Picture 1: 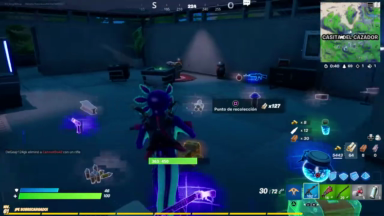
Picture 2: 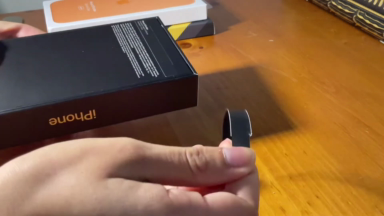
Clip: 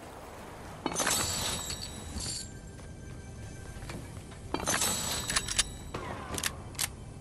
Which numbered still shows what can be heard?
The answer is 1